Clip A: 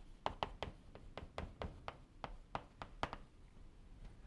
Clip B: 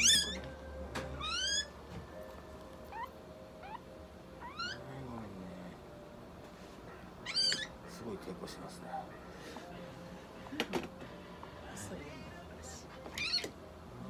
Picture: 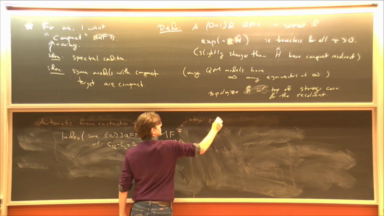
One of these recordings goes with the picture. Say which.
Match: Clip A